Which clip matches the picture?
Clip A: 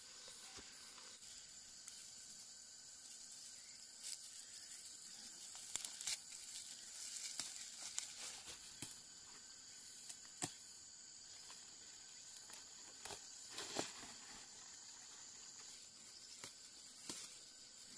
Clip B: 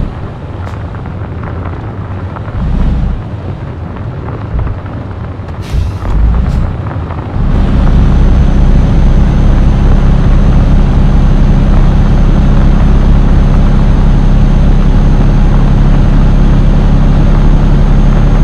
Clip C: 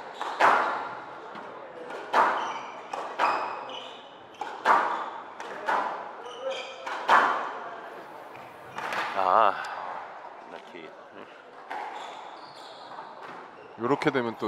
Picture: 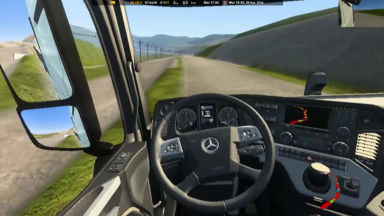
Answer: B